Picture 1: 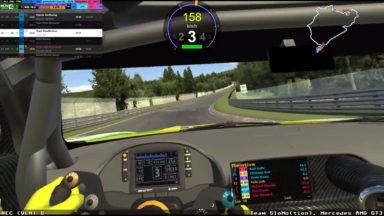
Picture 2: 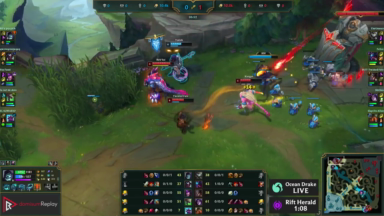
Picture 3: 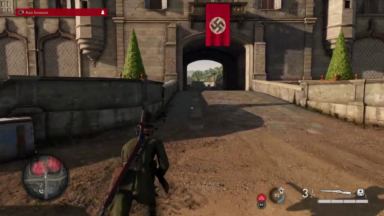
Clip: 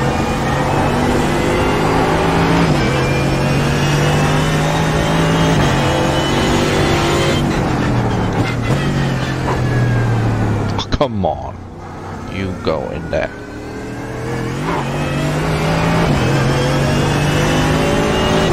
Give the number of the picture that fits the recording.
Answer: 1